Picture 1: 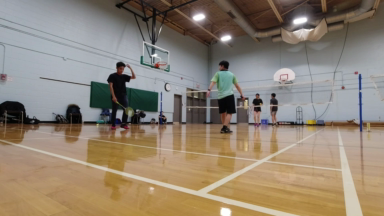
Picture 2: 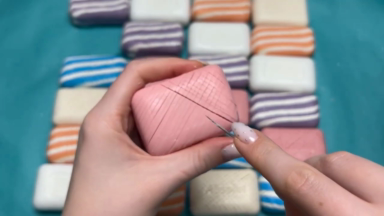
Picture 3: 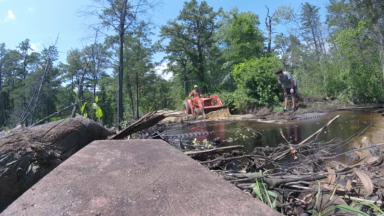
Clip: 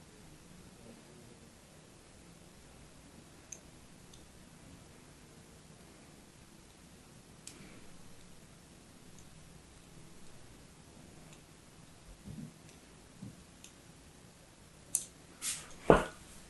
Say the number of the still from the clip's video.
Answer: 2